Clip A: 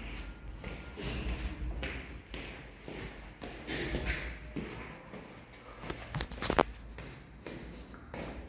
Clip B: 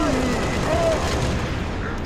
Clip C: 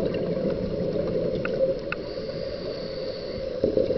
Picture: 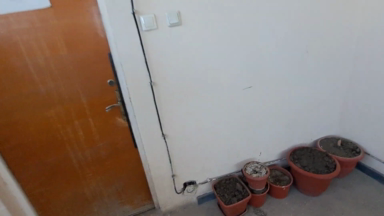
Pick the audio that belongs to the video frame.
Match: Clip A